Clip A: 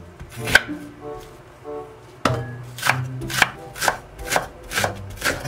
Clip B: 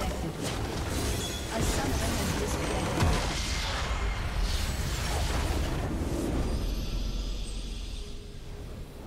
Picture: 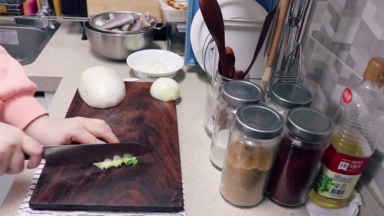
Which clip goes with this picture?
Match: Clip A